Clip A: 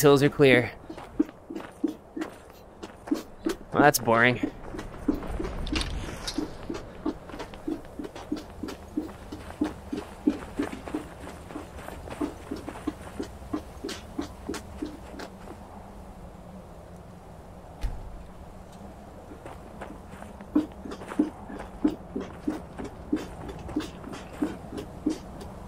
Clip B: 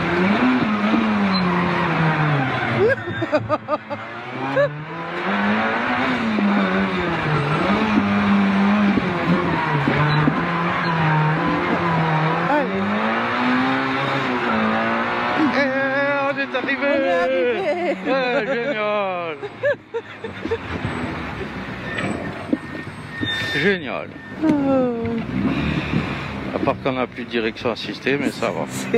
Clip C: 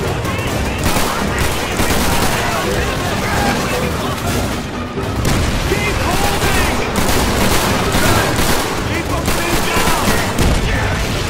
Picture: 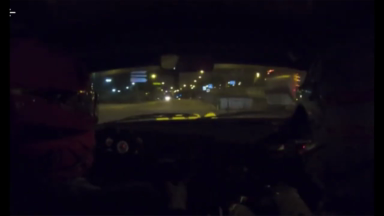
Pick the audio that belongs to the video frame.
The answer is B